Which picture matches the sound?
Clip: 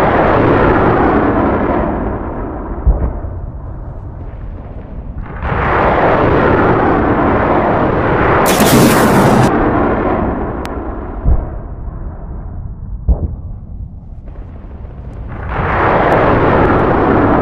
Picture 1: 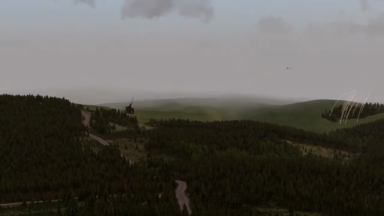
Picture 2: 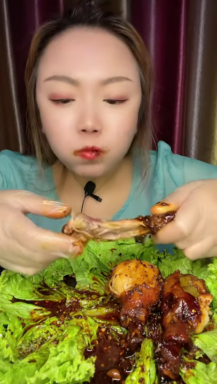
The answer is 1